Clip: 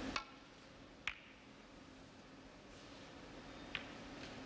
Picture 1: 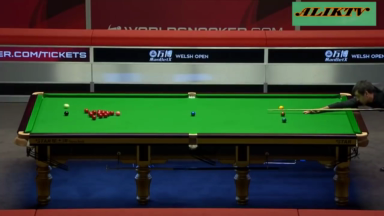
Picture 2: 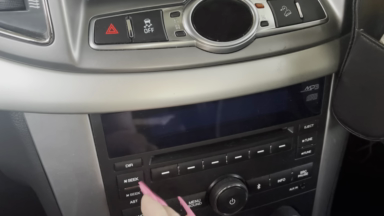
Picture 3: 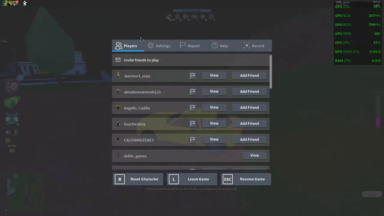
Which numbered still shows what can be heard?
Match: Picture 1